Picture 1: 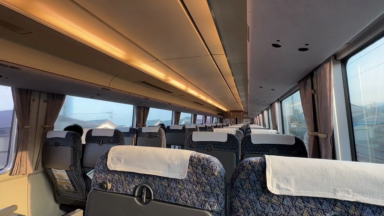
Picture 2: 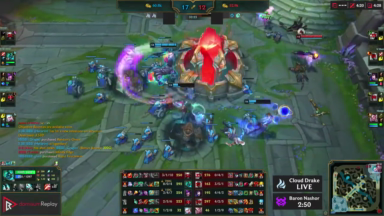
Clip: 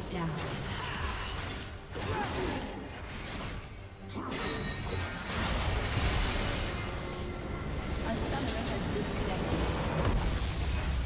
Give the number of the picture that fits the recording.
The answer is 2